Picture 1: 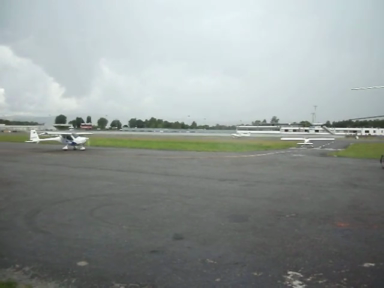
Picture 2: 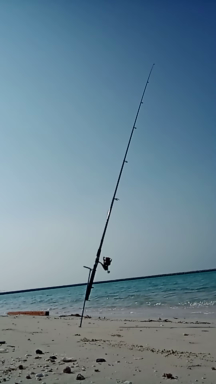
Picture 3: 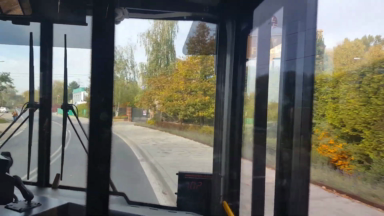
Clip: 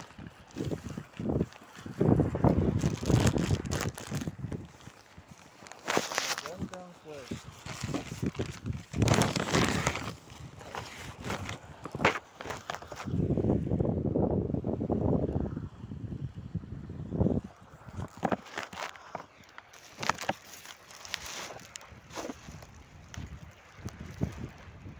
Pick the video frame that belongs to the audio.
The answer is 2